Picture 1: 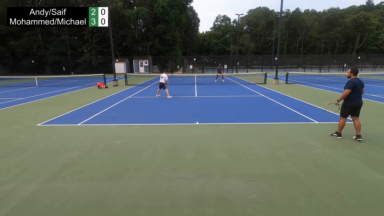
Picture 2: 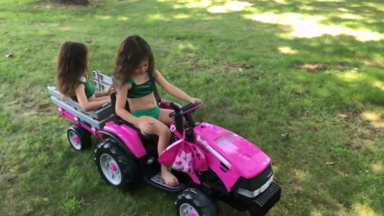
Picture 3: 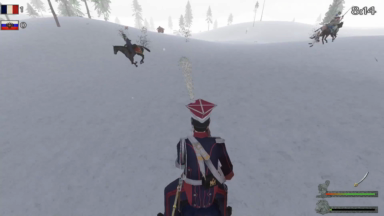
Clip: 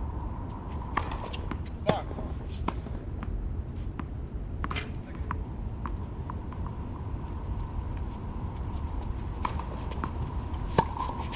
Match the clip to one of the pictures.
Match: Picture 1